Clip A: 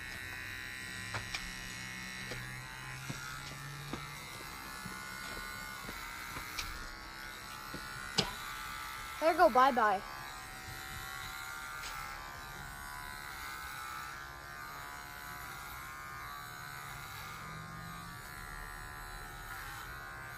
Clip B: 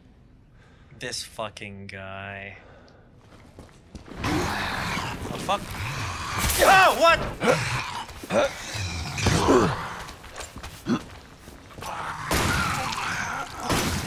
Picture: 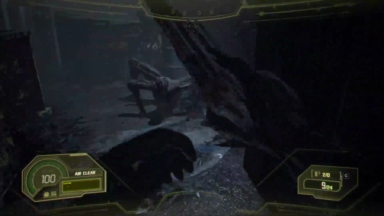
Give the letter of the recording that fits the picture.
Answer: B